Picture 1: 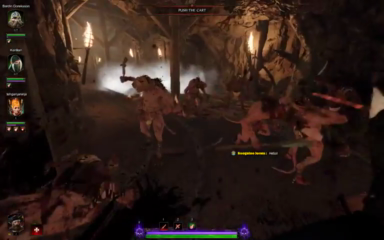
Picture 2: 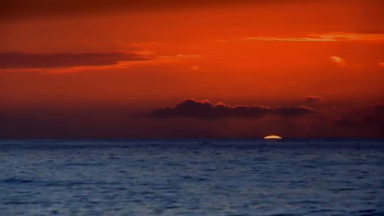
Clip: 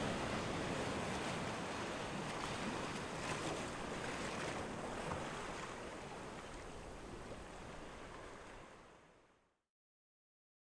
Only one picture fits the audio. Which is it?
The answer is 2